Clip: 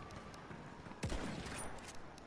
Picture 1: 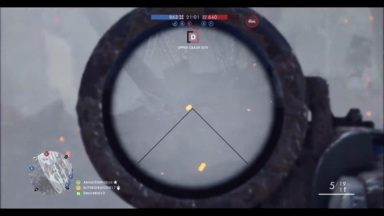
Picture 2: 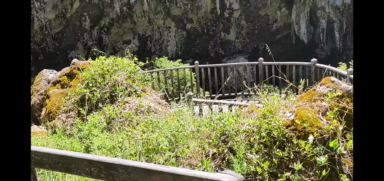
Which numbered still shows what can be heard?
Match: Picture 1